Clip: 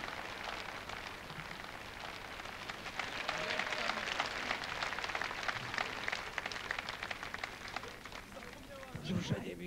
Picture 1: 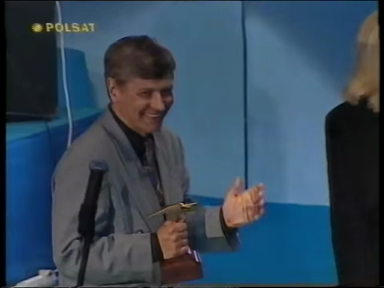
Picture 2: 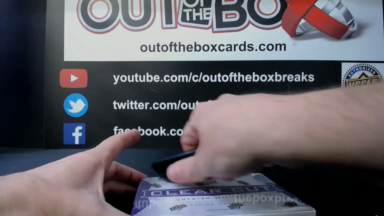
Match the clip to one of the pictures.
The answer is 1